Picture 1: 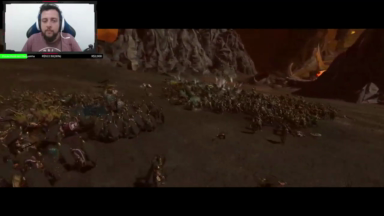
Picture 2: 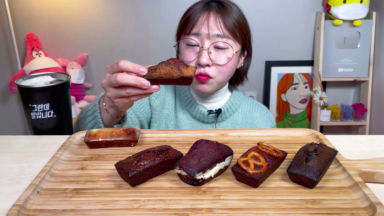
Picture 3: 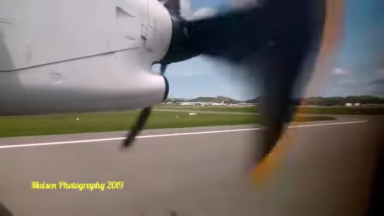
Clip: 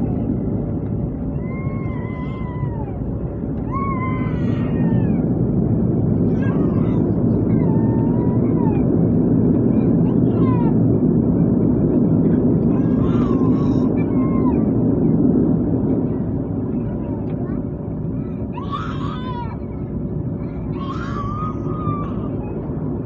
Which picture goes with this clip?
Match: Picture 3